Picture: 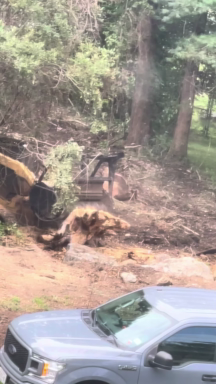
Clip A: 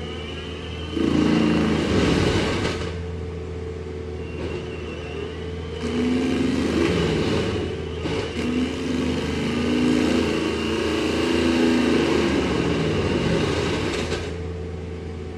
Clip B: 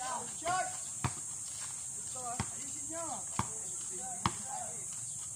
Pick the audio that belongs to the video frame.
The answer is A